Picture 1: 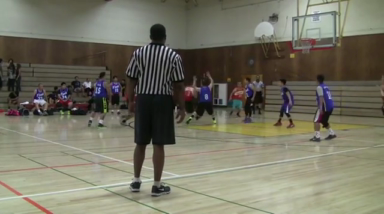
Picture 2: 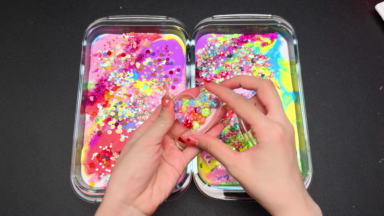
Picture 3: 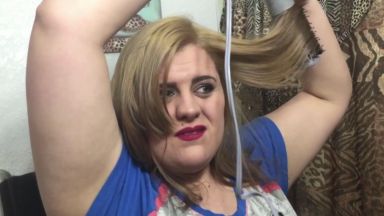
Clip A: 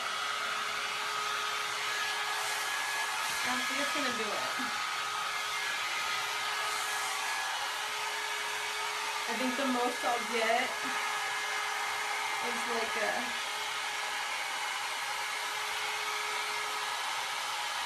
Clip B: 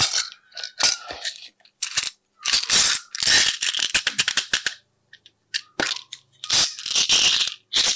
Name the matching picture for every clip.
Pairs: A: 3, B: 2